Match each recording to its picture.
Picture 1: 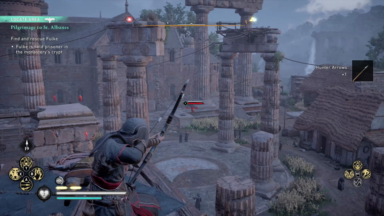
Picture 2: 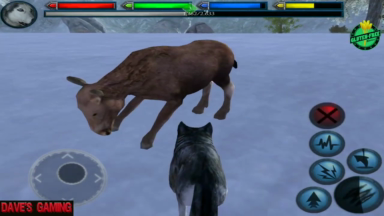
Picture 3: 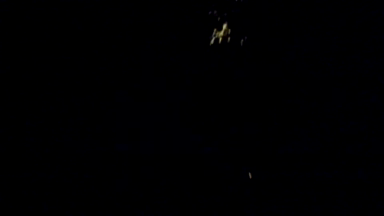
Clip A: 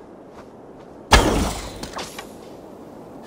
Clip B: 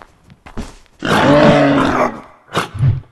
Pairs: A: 1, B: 2